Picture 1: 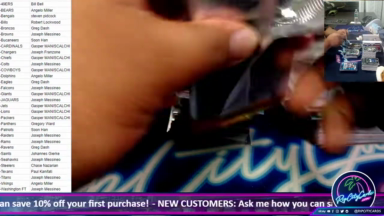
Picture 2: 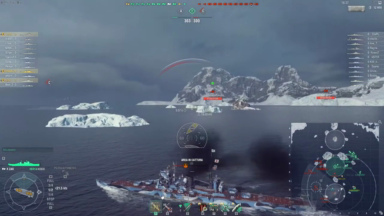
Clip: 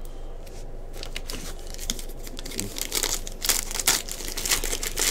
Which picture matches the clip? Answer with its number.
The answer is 1